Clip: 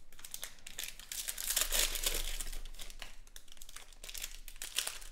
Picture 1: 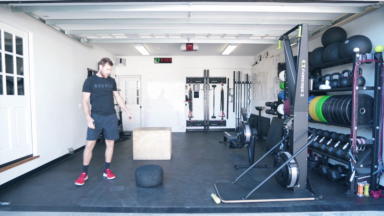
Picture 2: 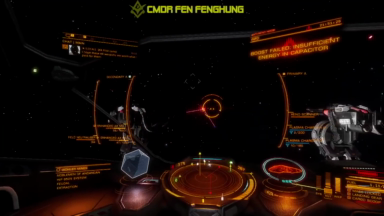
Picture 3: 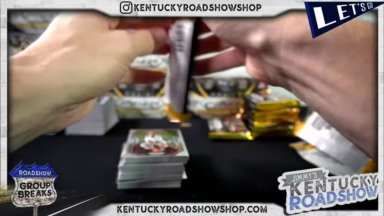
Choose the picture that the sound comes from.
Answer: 3